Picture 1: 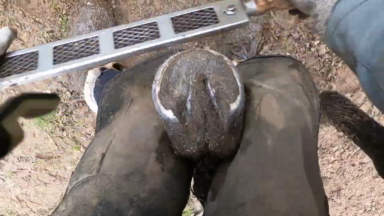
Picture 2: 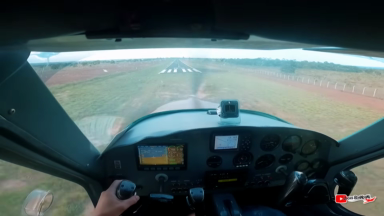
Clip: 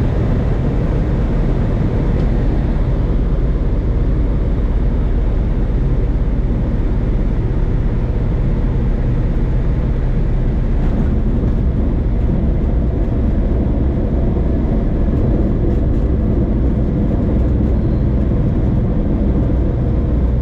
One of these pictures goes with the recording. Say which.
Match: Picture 2